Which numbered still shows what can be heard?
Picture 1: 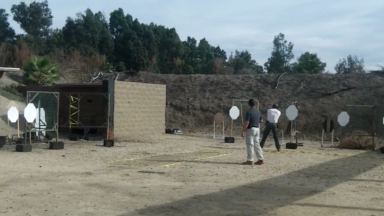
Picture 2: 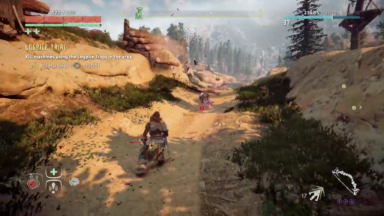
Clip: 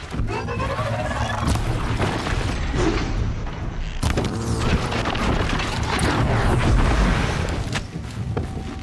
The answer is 2